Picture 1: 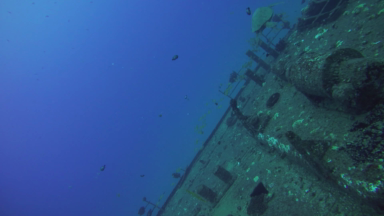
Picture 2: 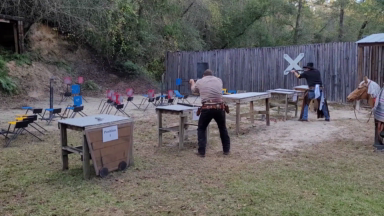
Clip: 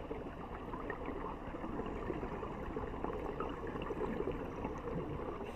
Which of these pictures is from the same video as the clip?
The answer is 1